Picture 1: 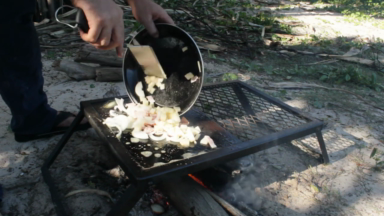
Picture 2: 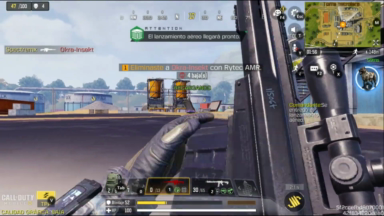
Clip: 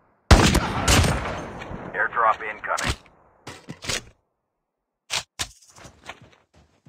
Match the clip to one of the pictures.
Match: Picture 2